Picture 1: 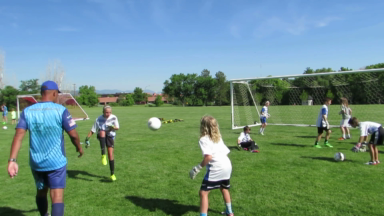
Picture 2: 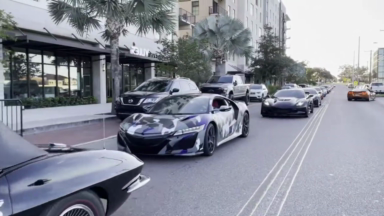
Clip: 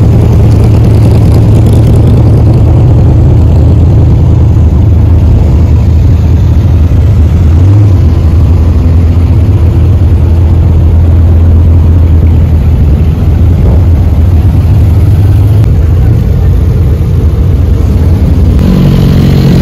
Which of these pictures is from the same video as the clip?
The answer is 2